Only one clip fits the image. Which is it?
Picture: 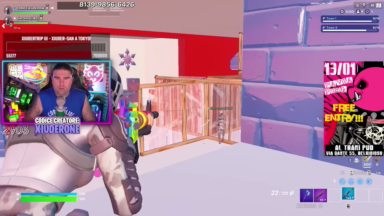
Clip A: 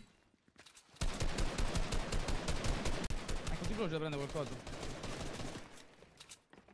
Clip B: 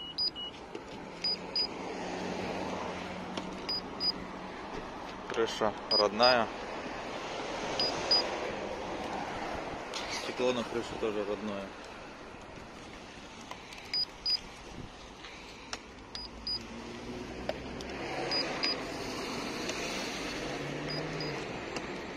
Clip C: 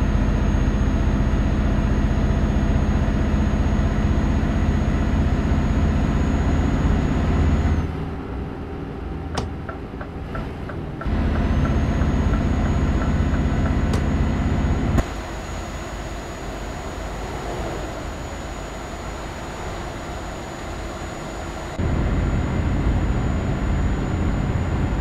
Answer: A